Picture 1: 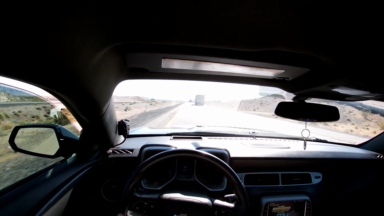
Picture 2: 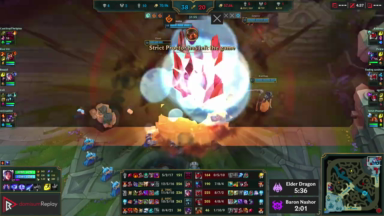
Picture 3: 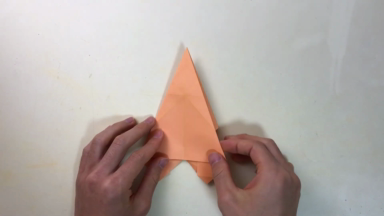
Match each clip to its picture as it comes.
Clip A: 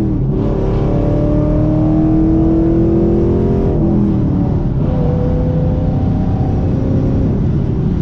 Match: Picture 1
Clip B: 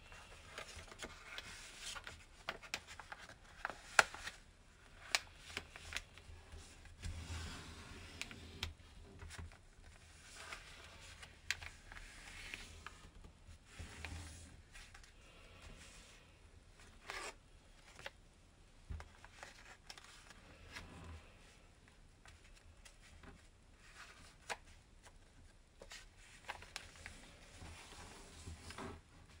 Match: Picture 3